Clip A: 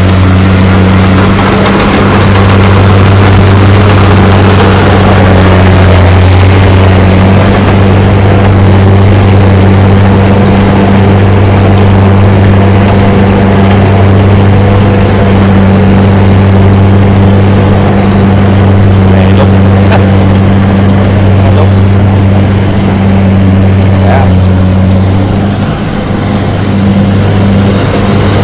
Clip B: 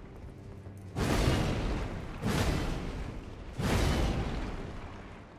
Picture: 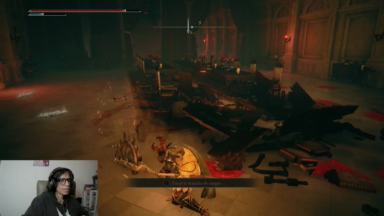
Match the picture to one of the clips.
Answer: B